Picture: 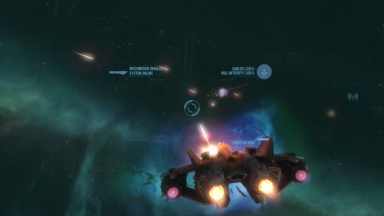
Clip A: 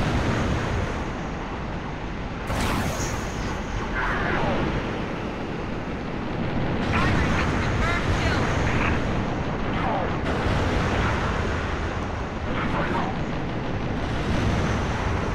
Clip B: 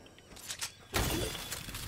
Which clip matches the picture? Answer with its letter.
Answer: A